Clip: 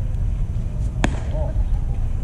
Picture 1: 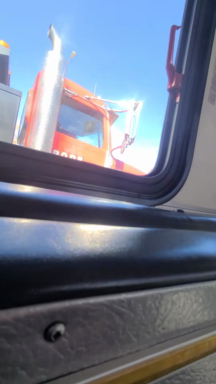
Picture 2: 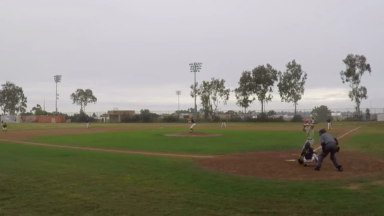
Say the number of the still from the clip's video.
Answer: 2